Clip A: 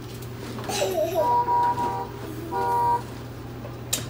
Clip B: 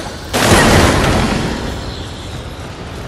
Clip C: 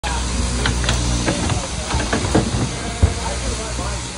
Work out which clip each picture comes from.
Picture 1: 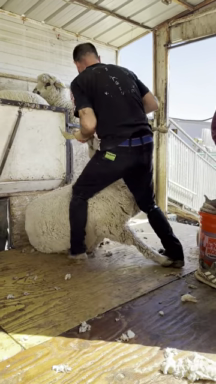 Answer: C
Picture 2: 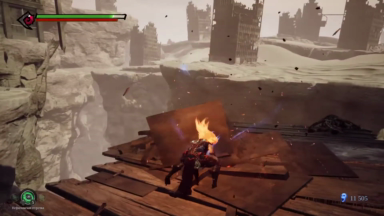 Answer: B